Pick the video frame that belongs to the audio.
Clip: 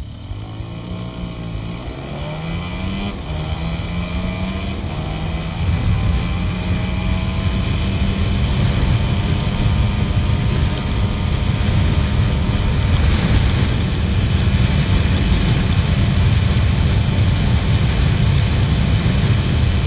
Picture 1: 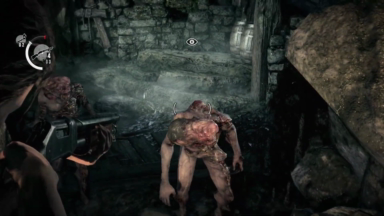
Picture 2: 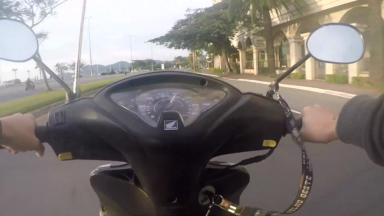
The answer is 2